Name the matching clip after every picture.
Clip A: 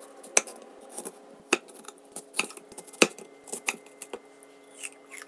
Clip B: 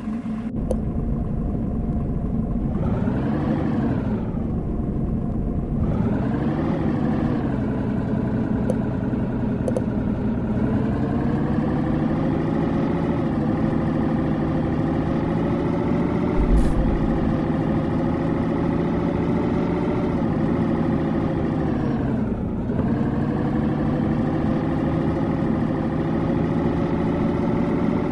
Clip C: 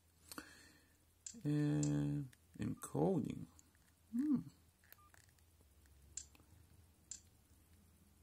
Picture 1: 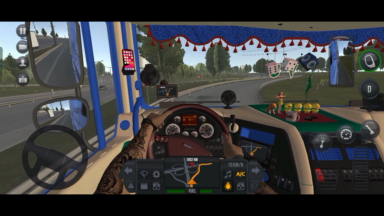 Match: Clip B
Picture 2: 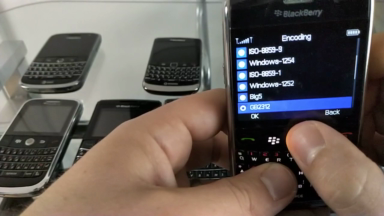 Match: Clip C